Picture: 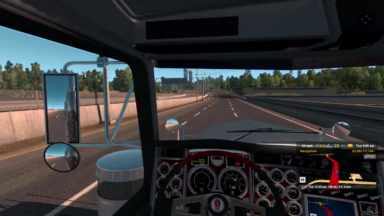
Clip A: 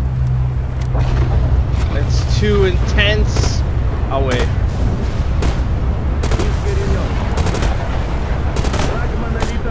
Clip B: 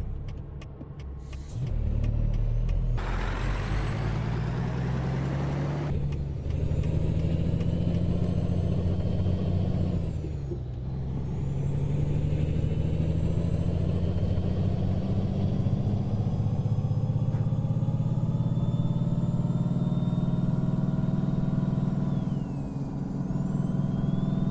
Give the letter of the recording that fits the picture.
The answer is B